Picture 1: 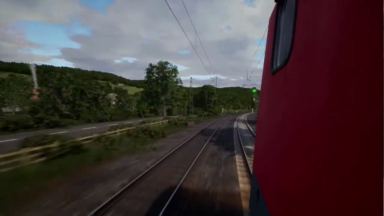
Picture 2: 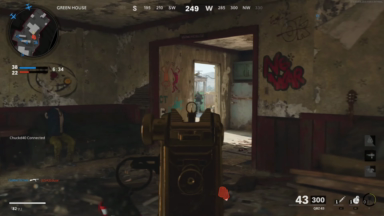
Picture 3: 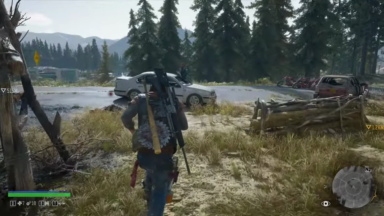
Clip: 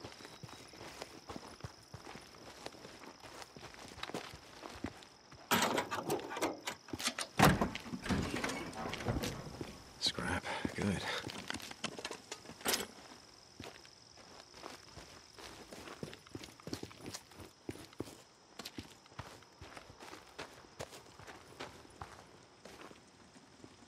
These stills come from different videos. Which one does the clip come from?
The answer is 3